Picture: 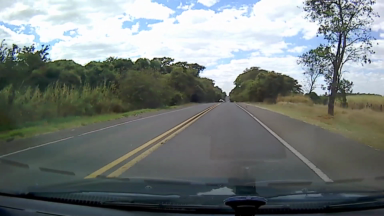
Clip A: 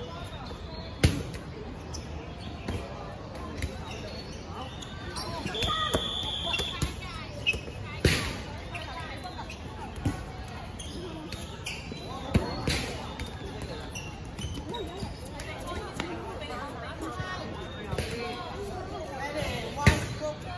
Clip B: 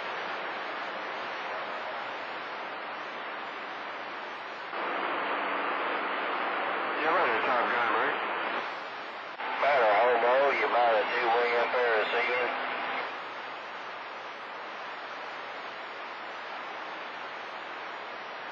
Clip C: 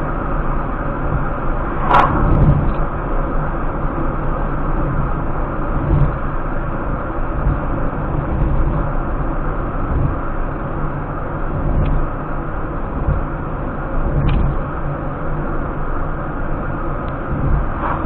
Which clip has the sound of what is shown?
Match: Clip C